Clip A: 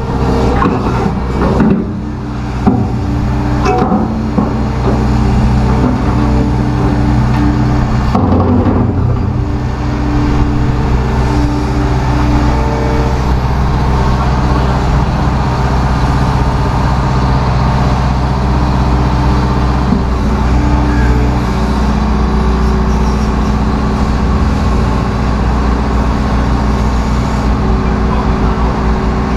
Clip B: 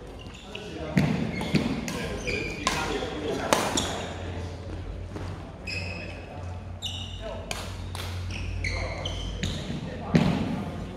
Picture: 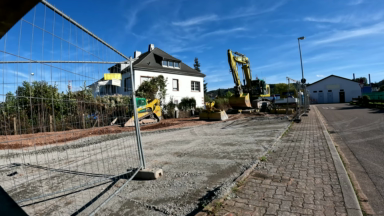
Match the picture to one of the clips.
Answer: A